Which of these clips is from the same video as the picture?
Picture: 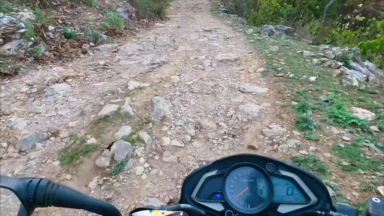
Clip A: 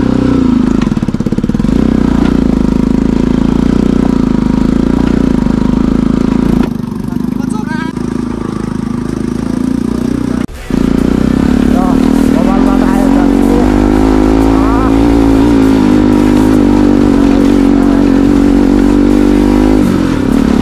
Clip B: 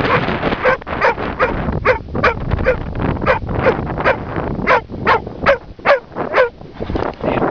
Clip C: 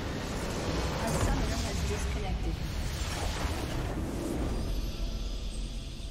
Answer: A